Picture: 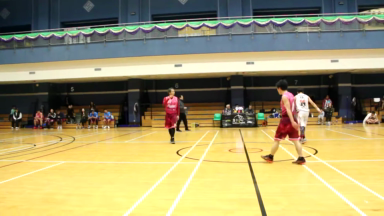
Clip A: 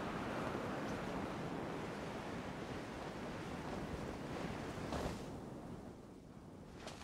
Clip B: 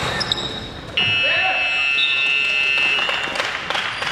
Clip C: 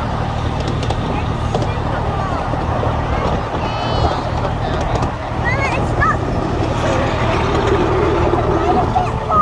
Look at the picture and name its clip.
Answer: B